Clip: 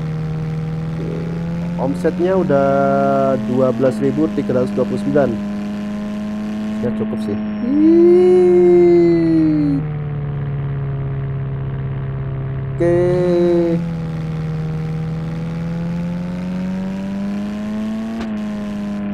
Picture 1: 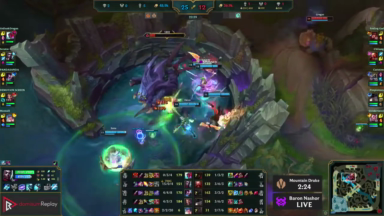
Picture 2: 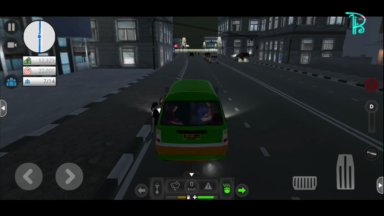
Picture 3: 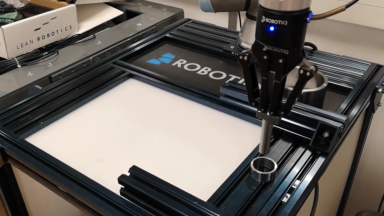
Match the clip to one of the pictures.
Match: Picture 2